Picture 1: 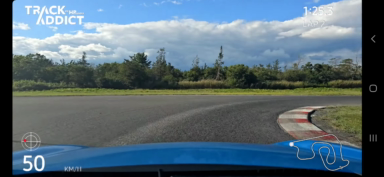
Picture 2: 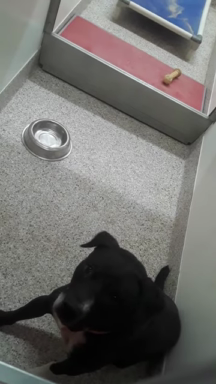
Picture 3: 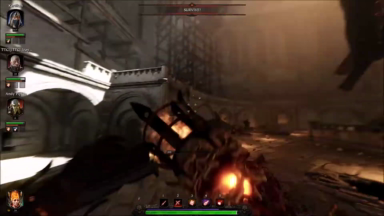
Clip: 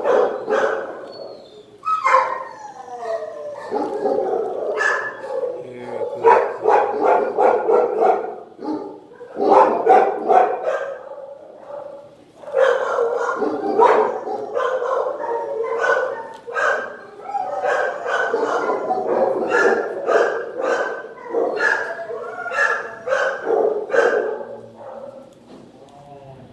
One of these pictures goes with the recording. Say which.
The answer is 2